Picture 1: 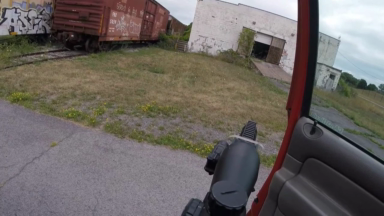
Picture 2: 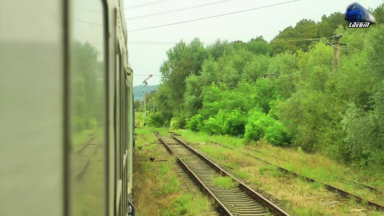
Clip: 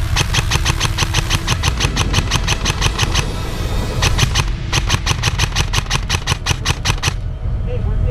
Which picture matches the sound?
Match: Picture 1